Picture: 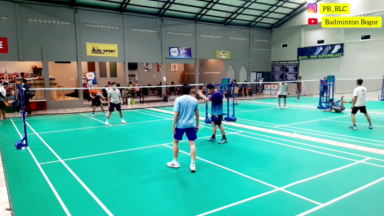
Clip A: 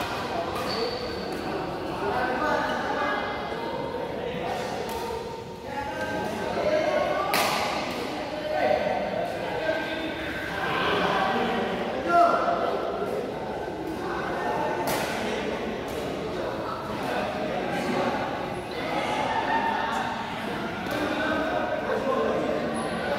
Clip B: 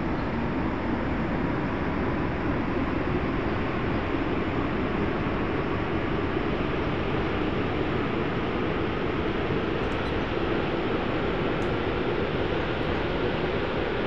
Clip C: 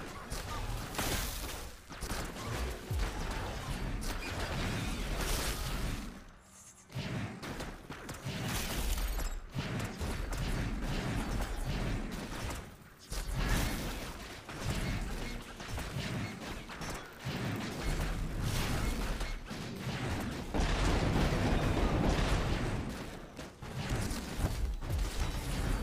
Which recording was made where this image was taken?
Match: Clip A